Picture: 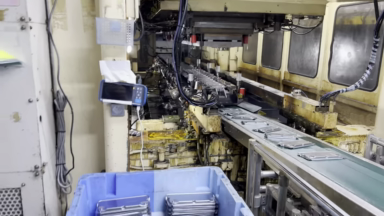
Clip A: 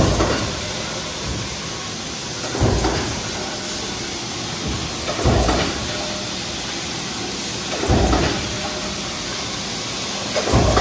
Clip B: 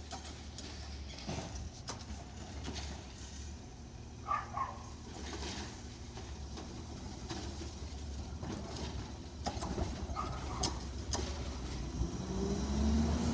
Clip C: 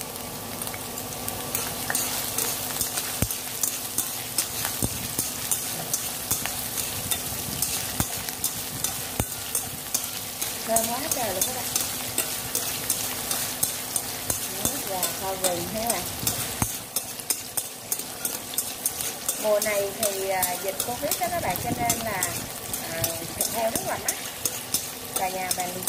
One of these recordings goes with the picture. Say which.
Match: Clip A